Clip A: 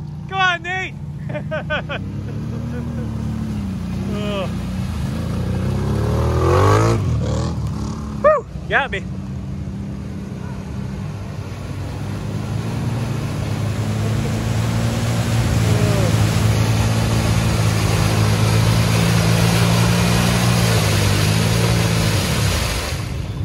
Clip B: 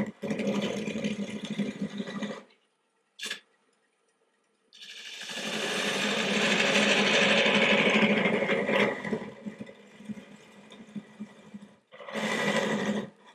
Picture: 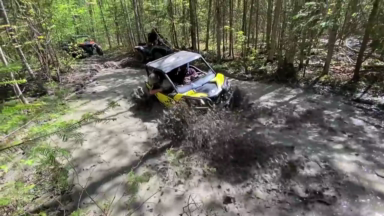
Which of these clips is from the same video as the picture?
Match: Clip A